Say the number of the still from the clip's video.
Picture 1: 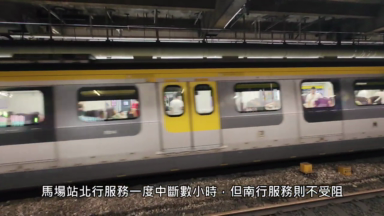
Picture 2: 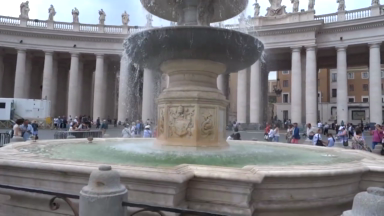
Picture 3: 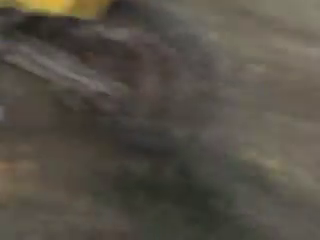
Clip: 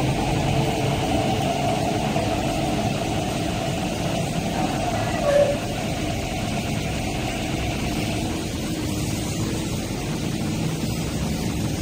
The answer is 1